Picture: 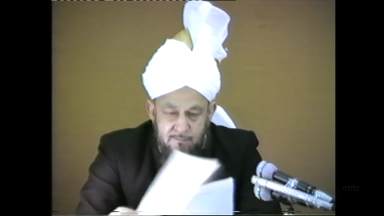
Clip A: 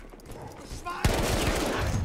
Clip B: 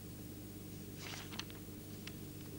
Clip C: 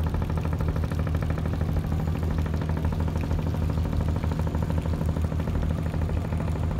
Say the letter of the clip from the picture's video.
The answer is B